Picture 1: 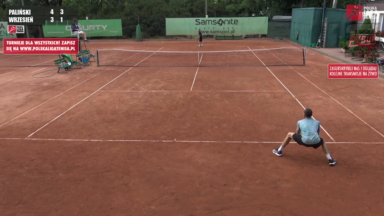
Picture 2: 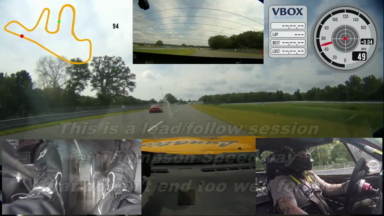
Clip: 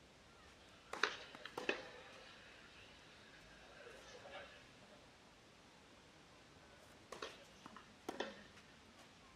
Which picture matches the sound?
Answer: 1